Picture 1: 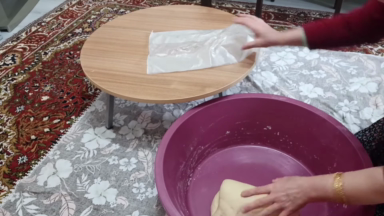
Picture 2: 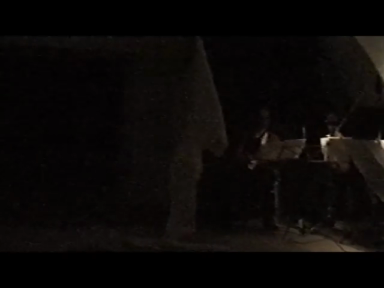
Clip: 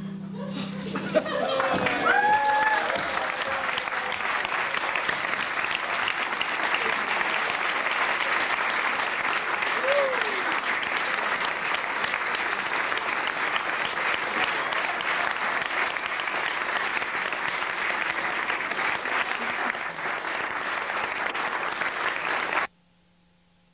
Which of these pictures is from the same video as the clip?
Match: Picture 2